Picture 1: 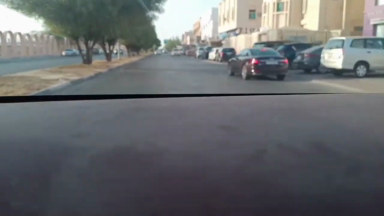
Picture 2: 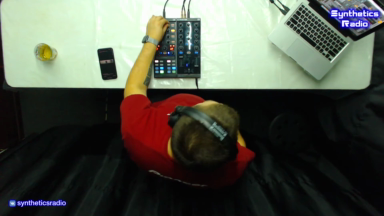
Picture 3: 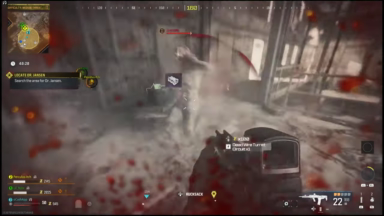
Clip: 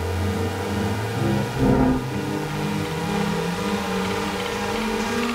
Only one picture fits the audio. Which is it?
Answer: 2